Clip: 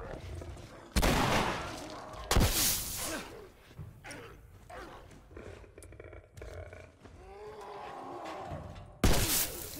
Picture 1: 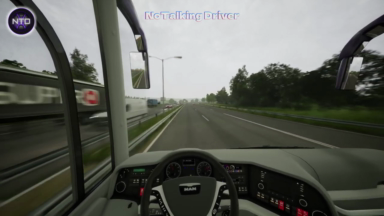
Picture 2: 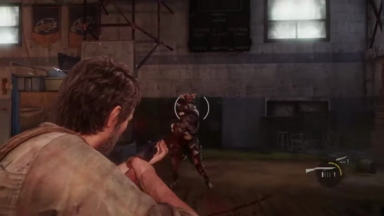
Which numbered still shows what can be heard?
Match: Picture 2